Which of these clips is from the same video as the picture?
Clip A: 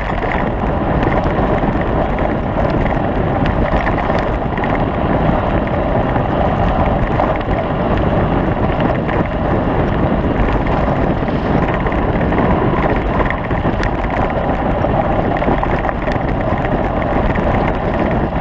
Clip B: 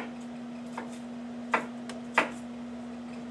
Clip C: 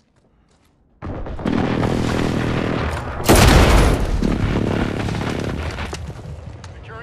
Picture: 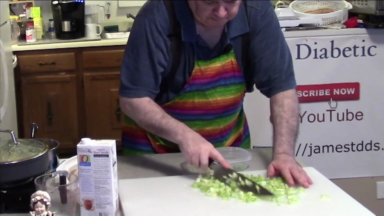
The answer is B